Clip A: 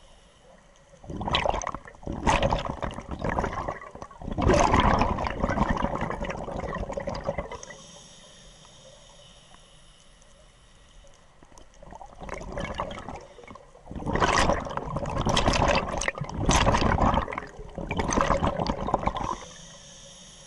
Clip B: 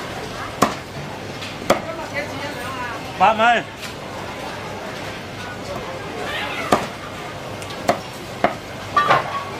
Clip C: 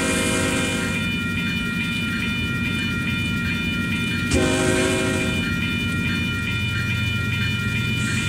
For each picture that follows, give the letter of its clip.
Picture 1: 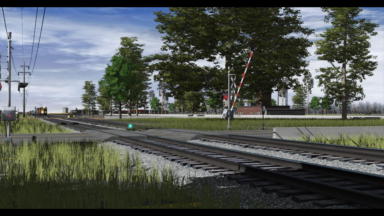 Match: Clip C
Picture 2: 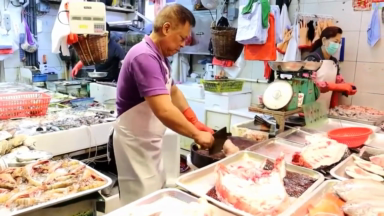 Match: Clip B